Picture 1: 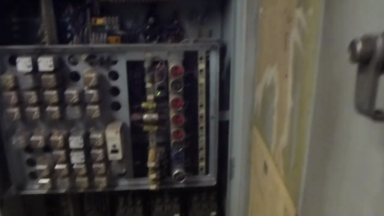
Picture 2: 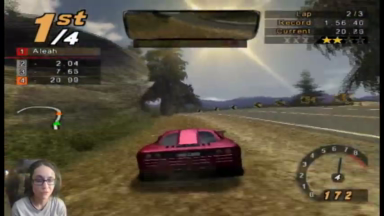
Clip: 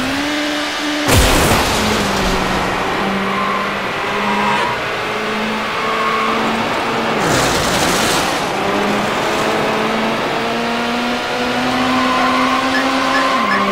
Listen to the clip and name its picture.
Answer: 2